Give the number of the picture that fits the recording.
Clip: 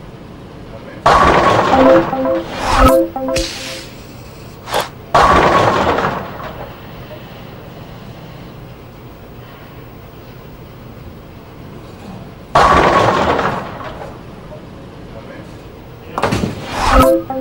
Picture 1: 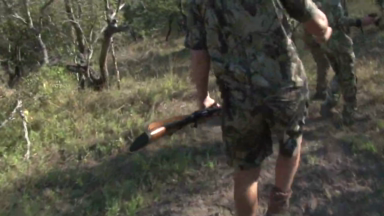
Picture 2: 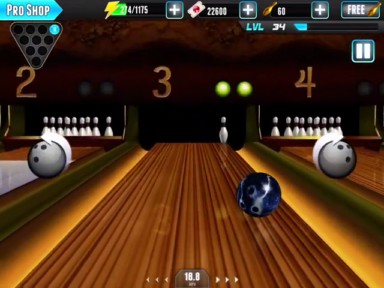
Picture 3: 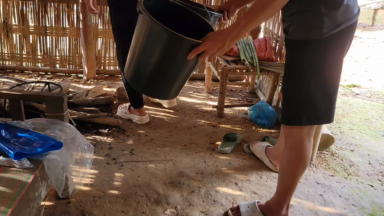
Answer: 2